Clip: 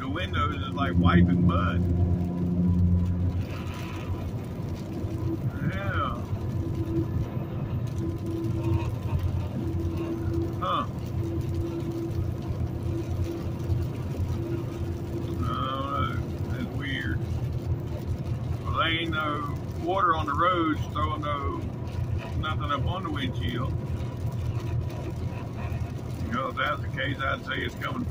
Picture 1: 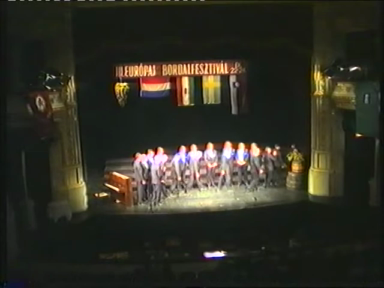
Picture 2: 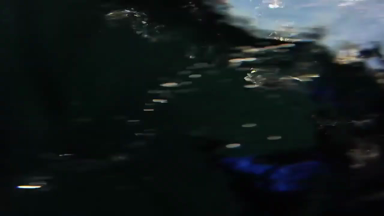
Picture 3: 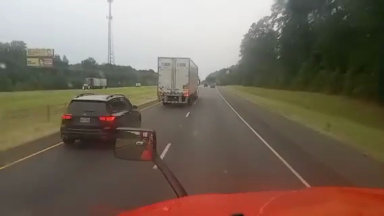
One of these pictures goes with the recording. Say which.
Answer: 3